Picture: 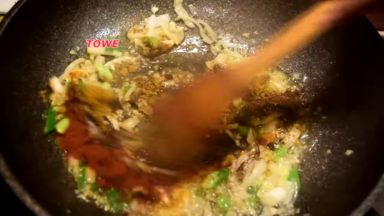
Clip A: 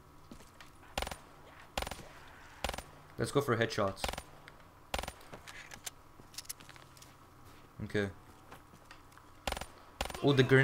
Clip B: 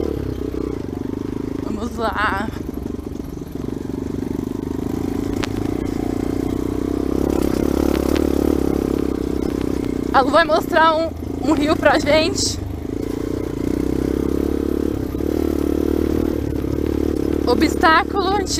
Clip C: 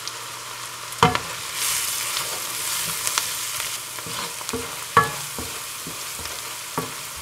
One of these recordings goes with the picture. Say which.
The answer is C